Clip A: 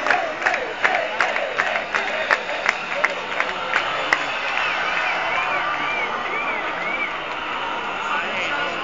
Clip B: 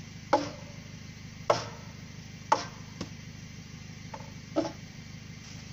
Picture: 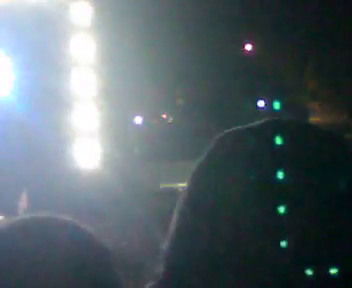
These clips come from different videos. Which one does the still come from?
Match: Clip A